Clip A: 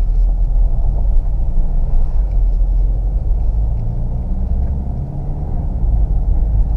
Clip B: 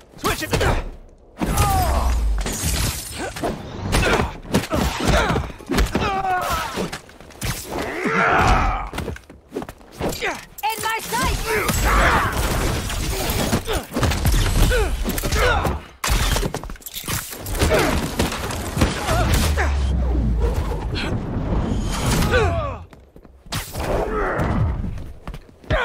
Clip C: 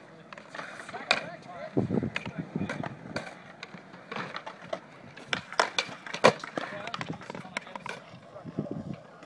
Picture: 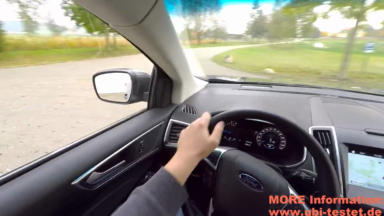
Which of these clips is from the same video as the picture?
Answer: A